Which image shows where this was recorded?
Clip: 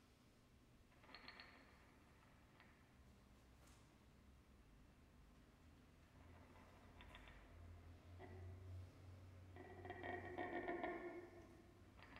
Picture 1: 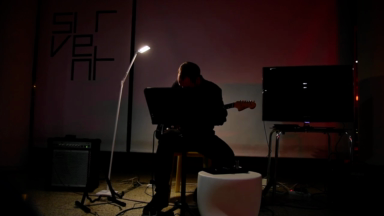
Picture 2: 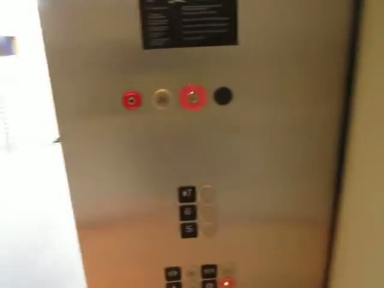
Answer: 1